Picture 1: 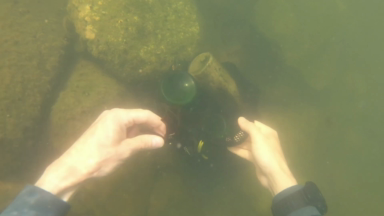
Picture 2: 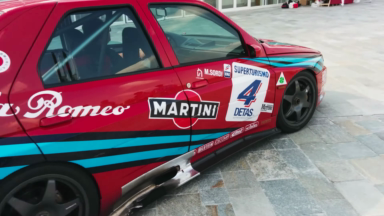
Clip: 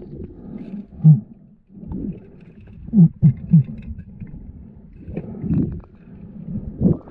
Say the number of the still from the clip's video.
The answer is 1